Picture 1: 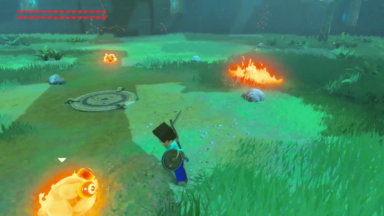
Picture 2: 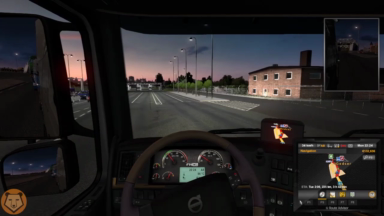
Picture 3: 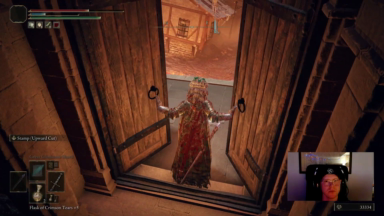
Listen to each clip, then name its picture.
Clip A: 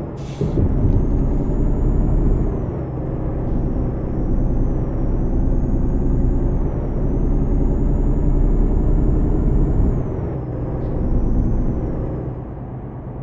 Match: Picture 2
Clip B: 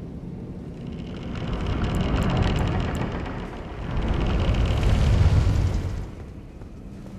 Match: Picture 3